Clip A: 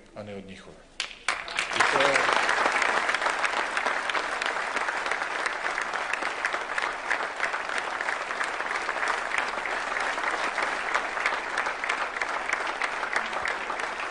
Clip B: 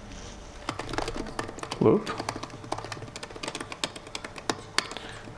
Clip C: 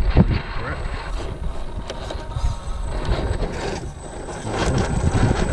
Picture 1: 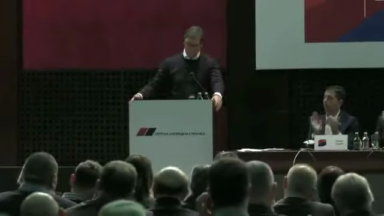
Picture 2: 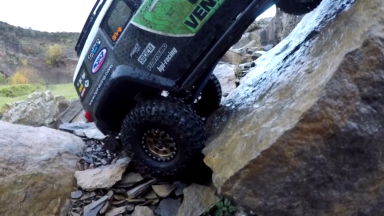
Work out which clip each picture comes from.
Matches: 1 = A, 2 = C